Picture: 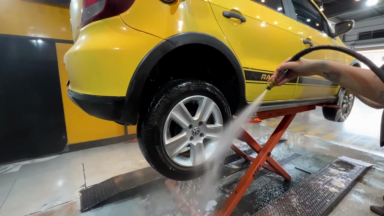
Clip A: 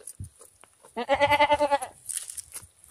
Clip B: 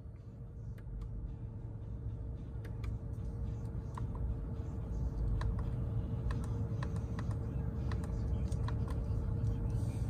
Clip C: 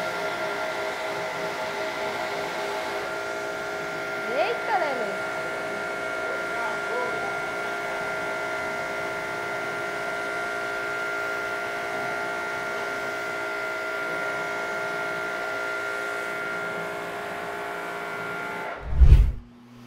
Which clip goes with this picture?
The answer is C